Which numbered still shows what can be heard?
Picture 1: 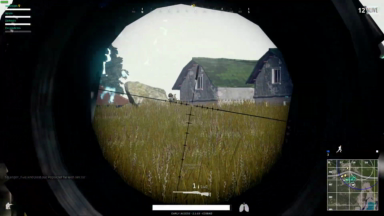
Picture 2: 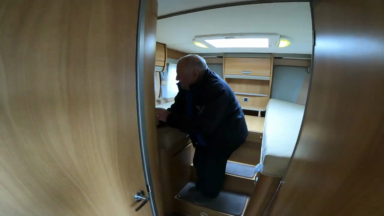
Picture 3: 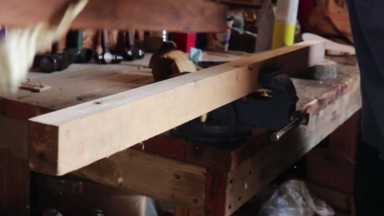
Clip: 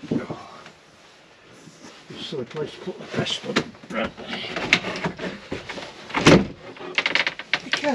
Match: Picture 2